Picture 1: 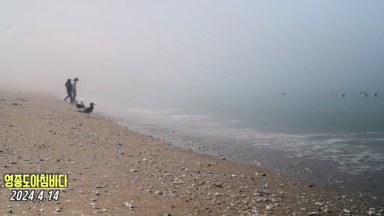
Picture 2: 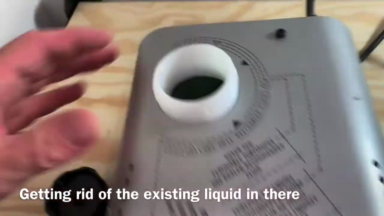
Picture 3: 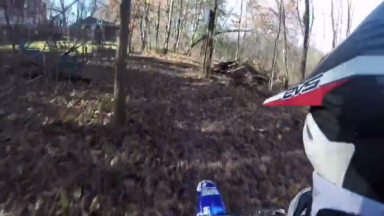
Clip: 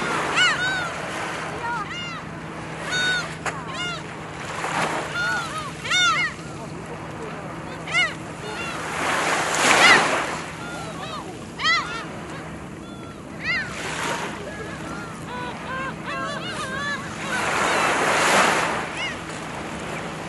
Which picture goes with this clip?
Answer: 1